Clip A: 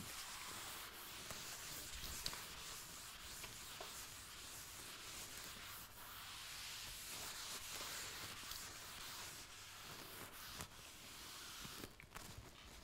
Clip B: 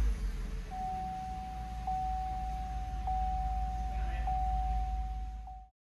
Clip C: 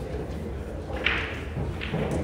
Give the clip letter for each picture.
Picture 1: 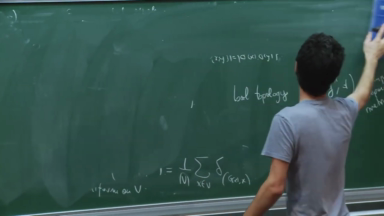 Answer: A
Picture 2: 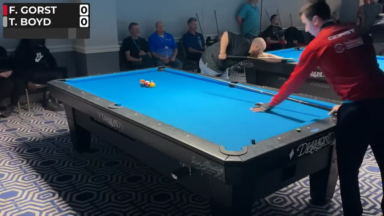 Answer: C